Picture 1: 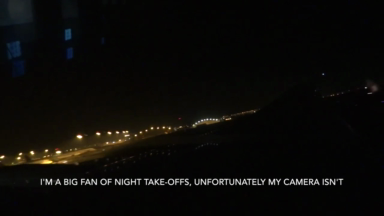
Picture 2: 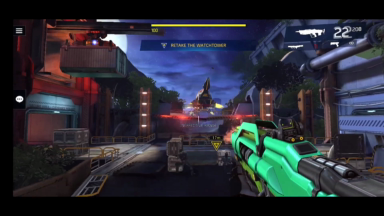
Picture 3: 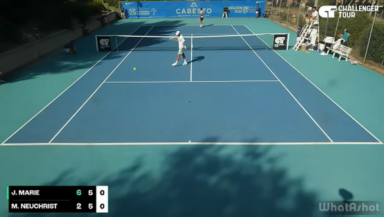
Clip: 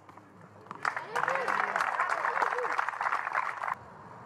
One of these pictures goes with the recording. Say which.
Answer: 3